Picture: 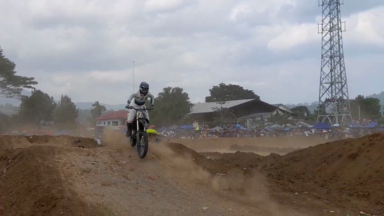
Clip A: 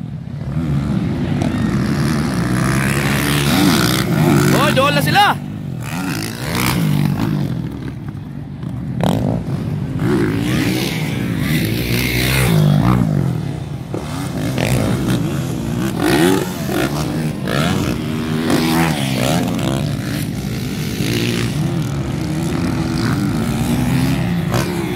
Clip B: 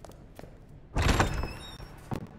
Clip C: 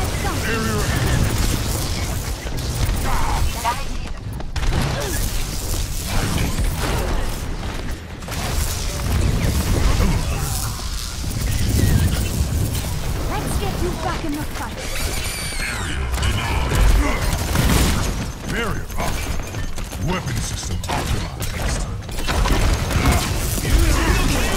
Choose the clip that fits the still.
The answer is A